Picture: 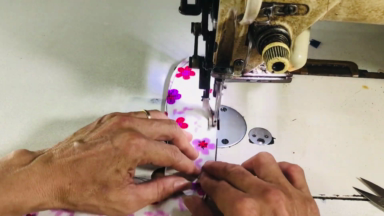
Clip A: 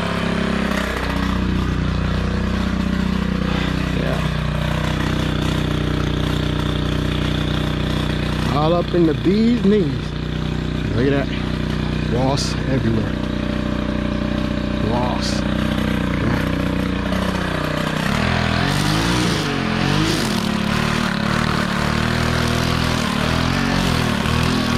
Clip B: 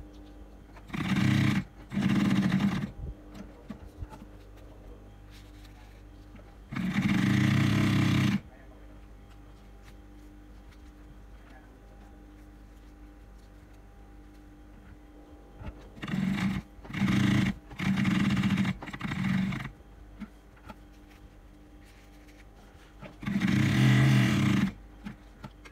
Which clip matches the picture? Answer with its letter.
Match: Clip B